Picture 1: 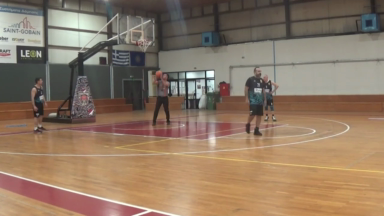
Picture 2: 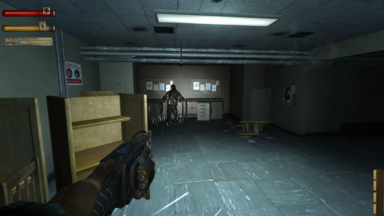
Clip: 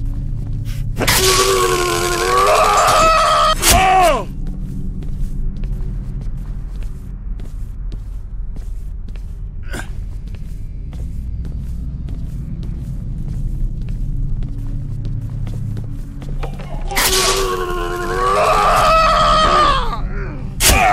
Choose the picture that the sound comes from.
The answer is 2